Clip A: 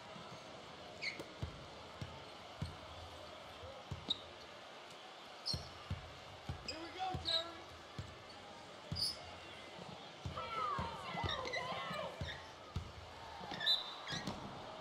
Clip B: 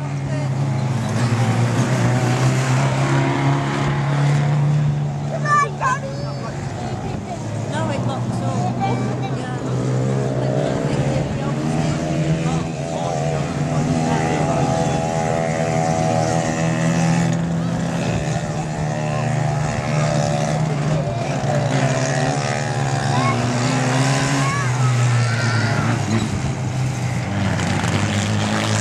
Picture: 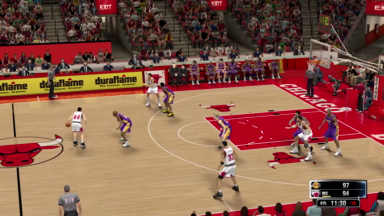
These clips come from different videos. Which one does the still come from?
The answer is A